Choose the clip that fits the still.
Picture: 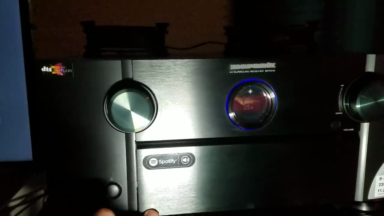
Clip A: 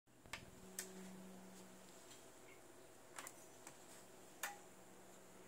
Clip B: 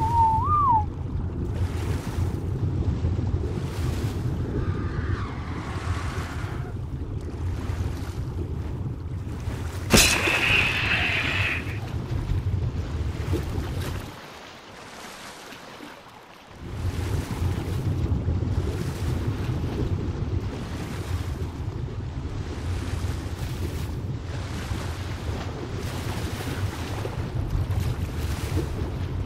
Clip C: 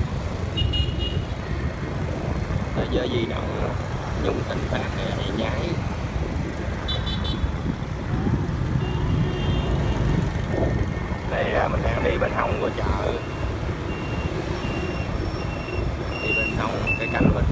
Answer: A